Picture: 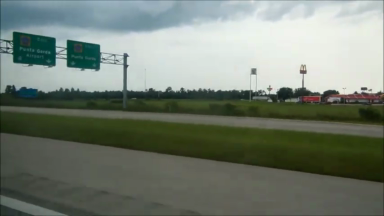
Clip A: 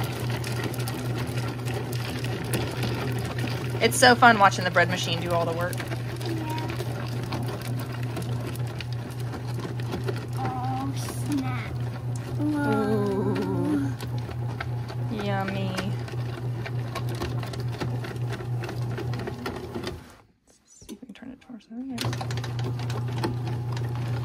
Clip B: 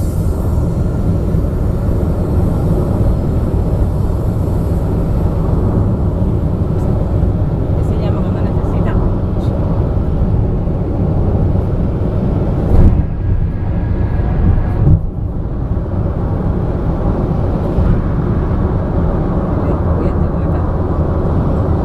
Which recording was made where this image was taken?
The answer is B